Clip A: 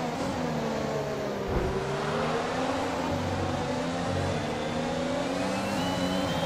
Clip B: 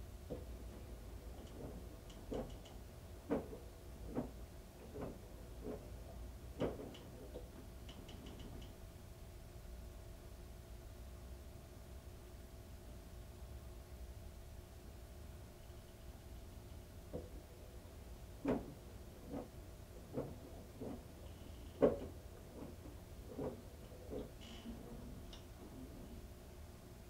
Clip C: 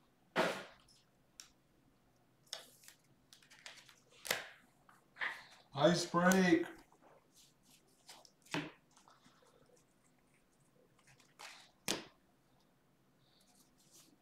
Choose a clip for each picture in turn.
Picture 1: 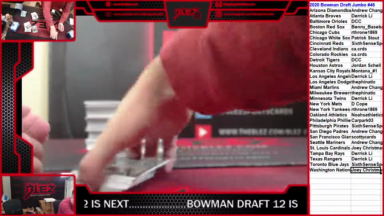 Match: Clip C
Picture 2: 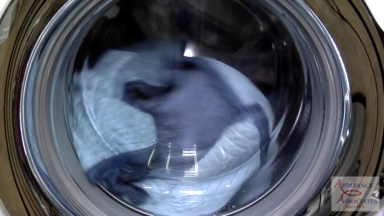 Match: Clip B